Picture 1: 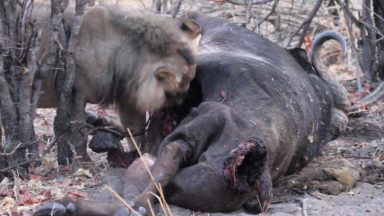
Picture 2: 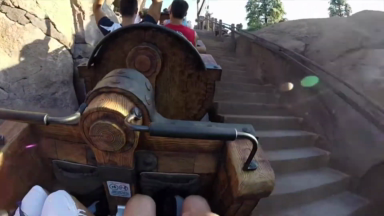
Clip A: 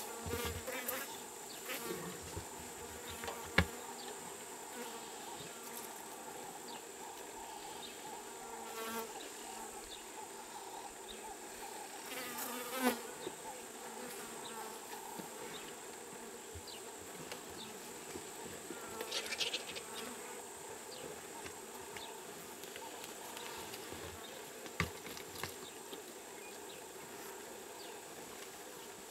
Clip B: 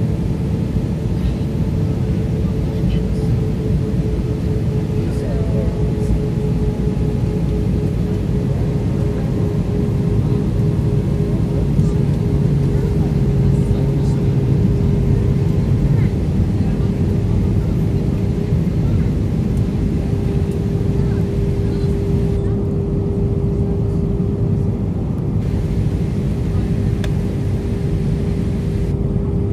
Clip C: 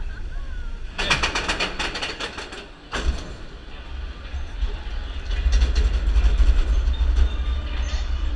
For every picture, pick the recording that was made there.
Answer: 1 A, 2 C